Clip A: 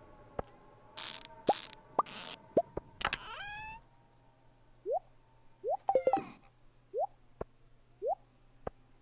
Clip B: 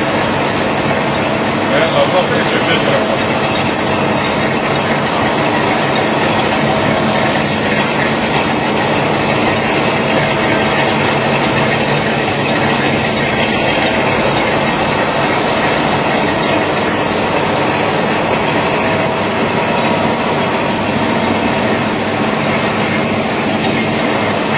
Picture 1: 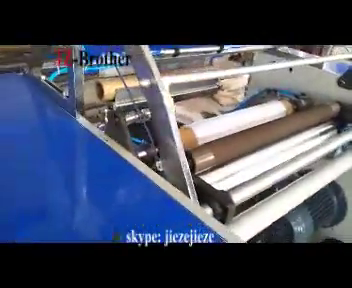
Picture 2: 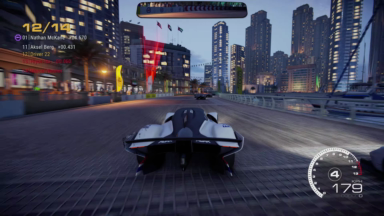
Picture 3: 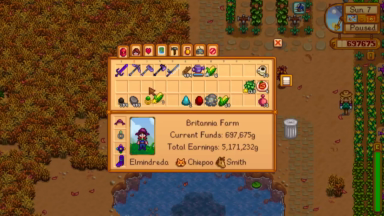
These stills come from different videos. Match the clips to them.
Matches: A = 3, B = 1